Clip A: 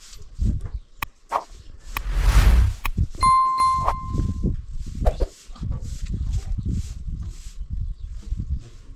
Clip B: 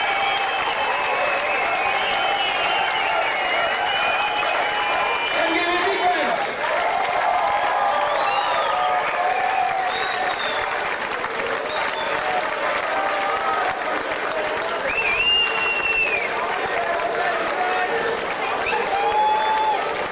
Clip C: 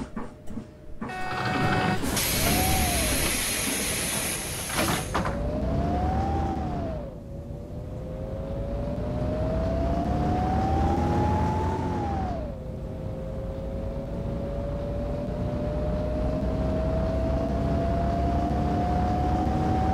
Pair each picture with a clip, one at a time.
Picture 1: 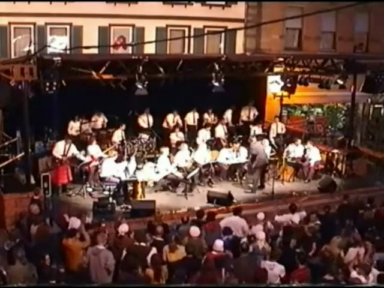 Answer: B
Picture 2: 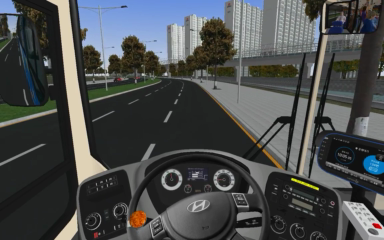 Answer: C